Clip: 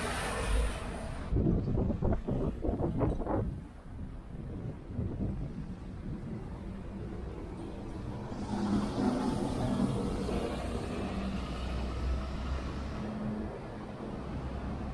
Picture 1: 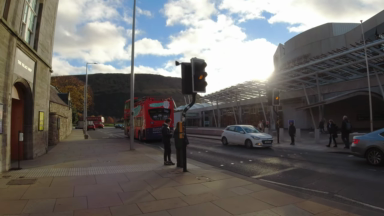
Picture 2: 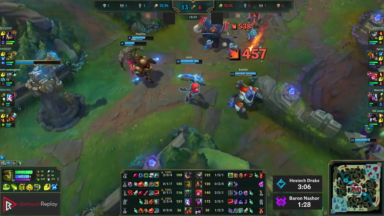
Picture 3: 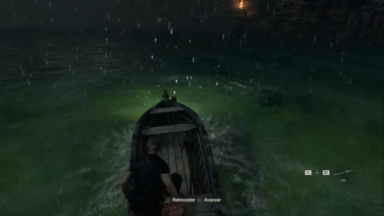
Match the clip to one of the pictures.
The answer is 1